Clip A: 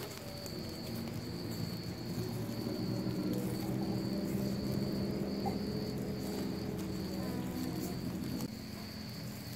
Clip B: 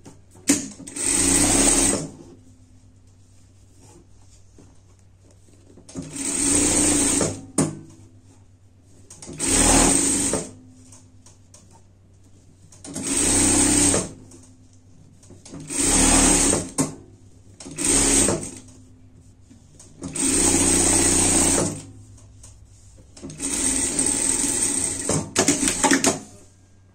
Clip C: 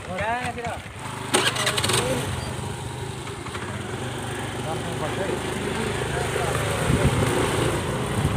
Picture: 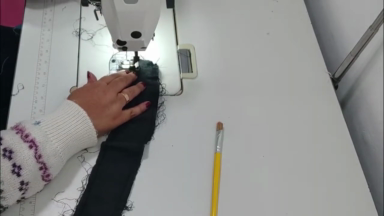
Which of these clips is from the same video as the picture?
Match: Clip B